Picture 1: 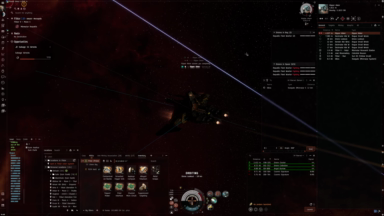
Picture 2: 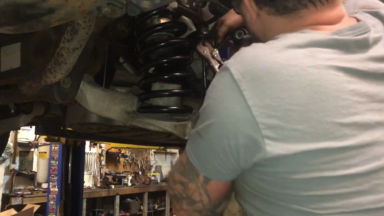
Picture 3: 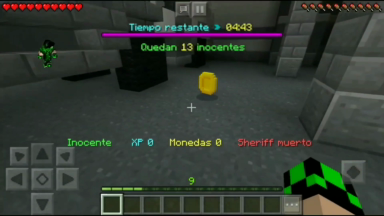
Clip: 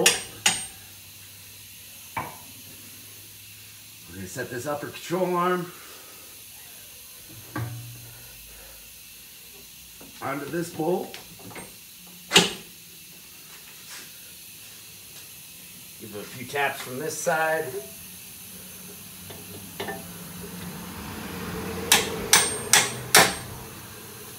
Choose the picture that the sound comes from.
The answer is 2